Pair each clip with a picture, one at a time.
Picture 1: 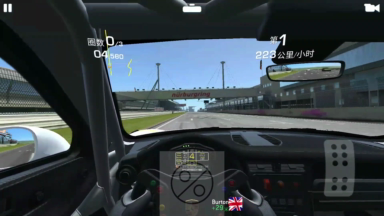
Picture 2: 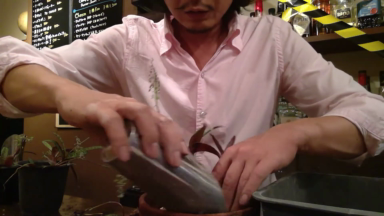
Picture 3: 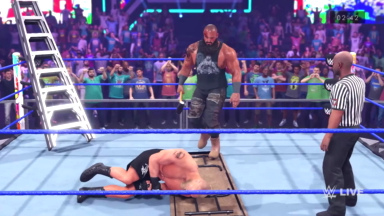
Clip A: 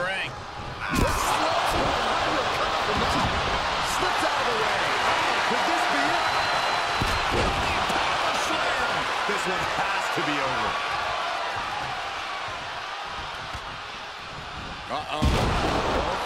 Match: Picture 3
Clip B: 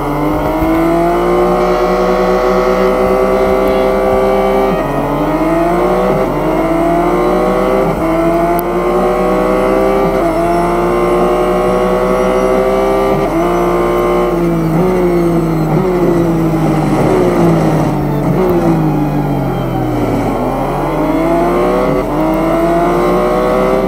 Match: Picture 1